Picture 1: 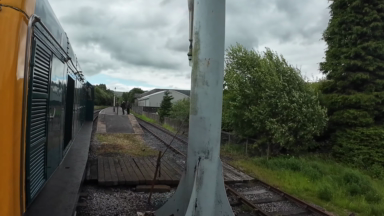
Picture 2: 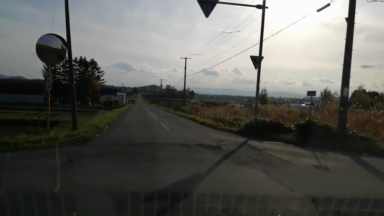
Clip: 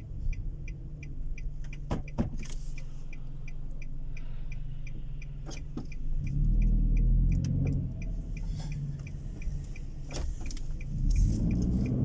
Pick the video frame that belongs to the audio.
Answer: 2